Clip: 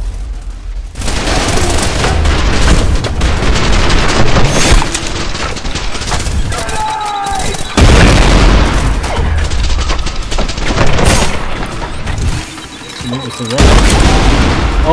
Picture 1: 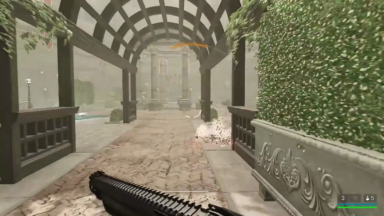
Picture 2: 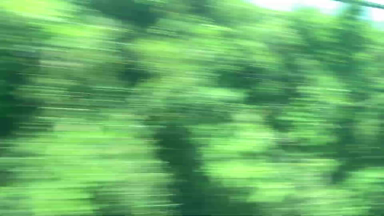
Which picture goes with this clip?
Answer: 1